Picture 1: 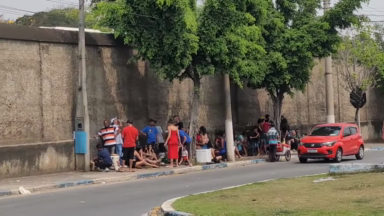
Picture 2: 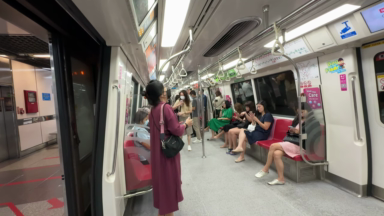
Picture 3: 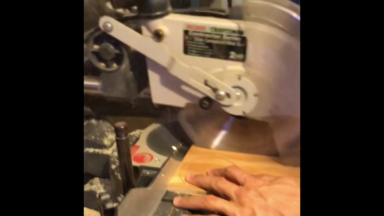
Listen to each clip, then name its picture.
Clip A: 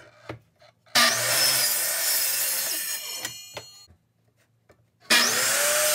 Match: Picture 3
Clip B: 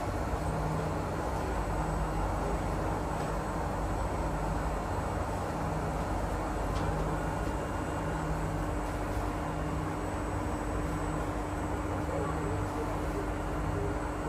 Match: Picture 2